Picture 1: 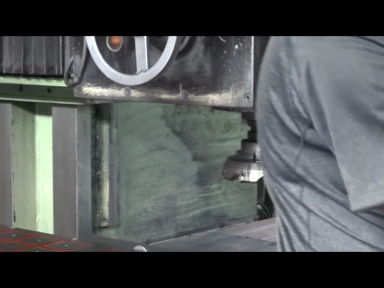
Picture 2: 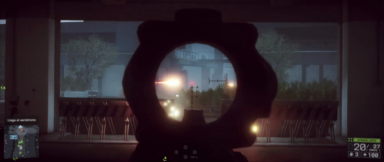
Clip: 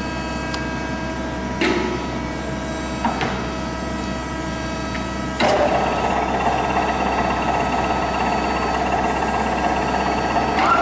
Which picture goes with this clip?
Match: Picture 1